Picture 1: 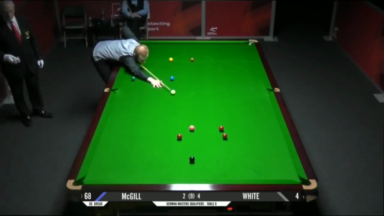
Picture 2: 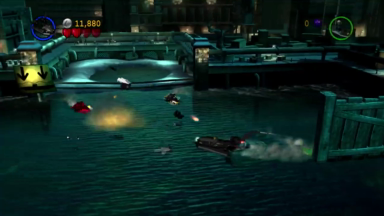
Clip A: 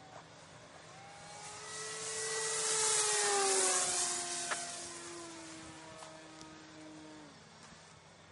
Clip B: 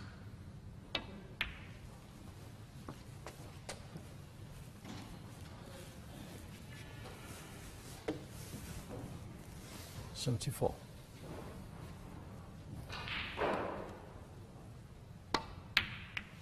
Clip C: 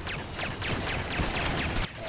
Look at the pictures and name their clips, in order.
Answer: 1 B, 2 C